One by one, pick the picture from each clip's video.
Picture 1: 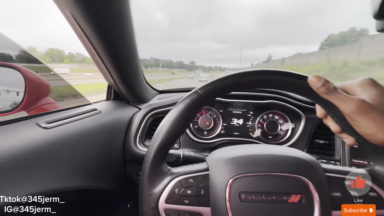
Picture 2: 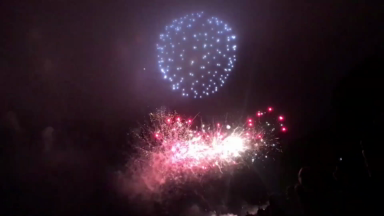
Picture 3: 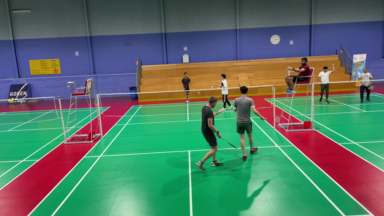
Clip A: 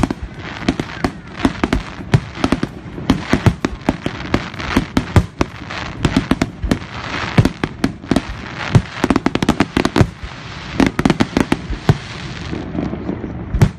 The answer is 2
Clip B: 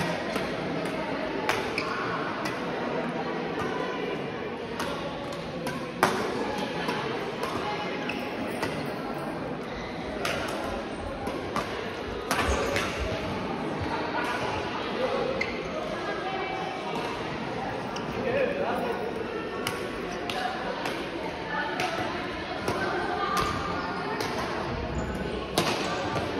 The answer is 3